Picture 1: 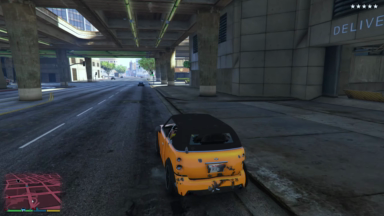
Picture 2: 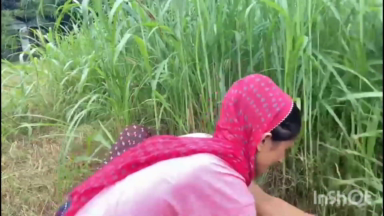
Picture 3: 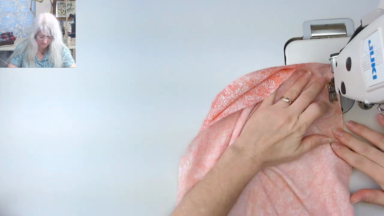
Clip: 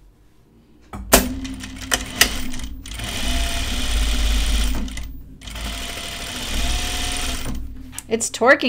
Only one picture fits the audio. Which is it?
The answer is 3